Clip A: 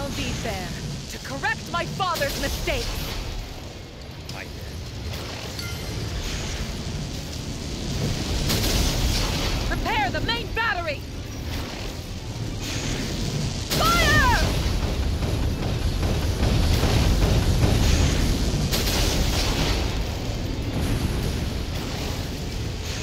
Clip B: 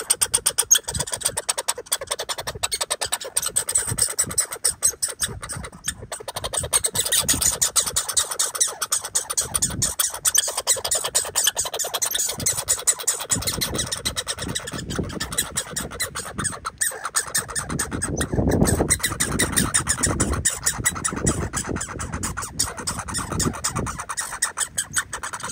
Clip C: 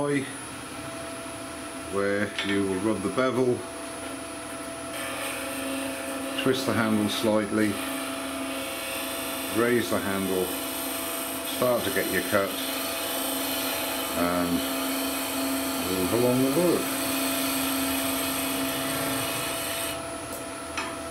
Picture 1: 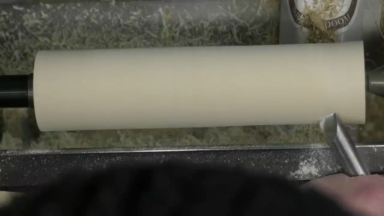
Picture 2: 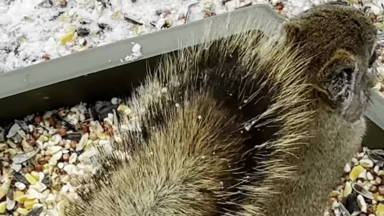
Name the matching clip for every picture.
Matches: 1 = C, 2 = B